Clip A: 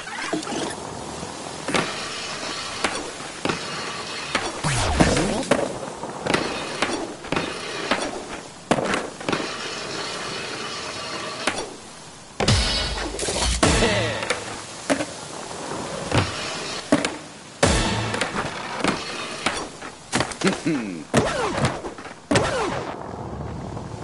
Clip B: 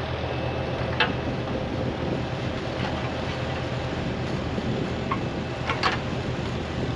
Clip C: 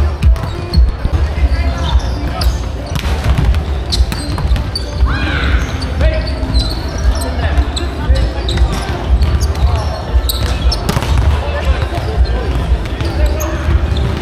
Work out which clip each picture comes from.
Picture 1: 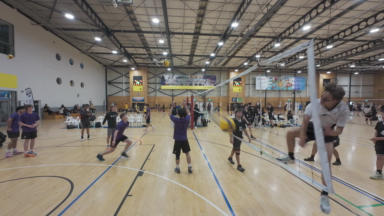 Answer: C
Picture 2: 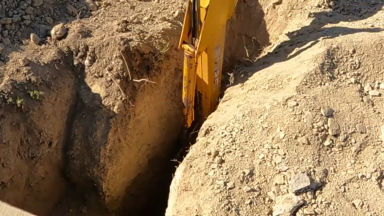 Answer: B